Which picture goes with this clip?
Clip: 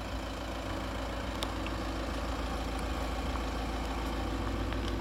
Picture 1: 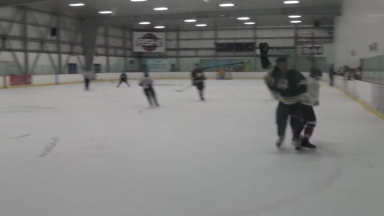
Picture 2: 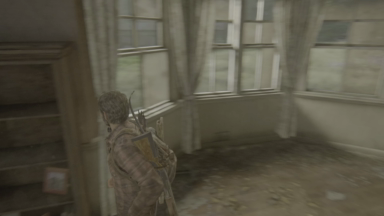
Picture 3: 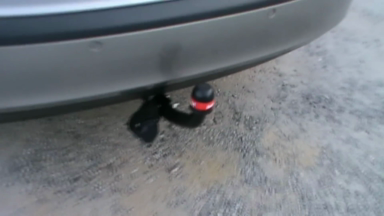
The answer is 3